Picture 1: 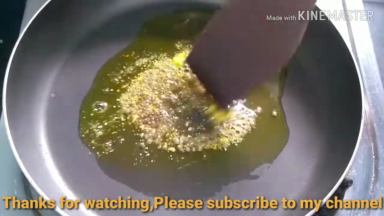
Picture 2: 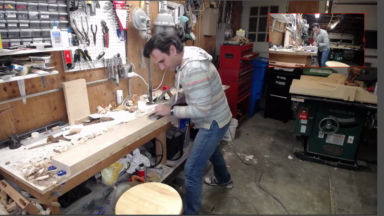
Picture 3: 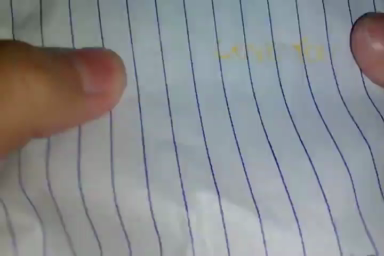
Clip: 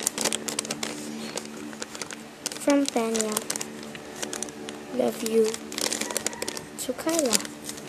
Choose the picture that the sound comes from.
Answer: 3